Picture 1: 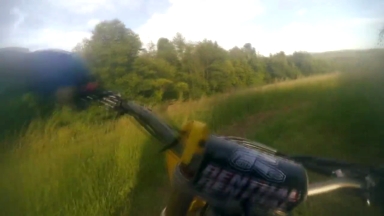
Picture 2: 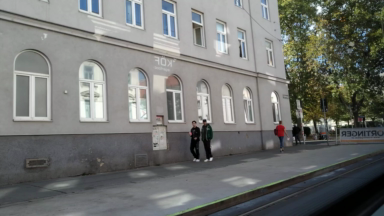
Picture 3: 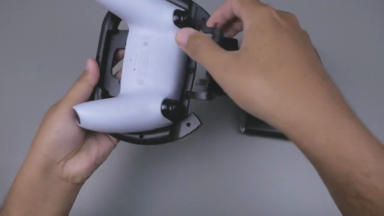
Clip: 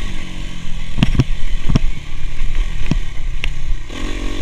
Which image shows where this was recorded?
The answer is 1